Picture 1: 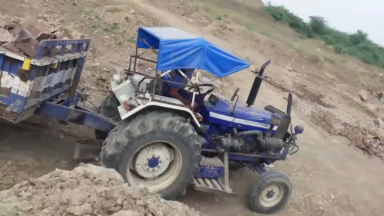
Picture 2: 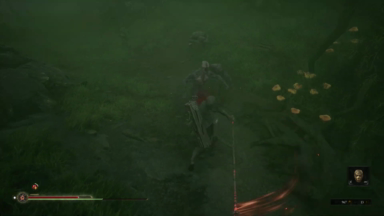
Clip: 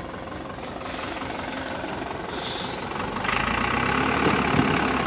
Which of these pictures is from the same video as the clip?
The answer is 1